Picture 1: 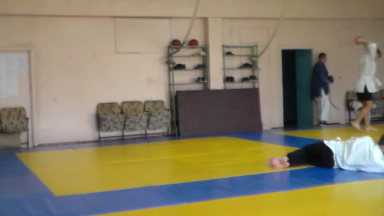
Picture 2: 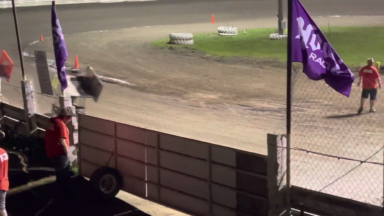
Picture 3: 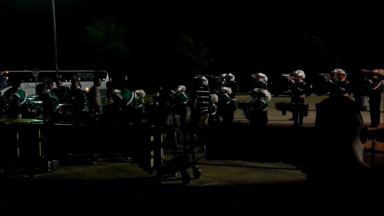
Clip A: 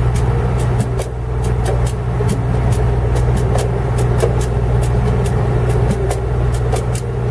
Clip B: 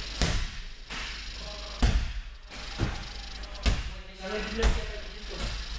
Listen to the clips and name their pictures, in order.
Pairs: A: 3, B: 1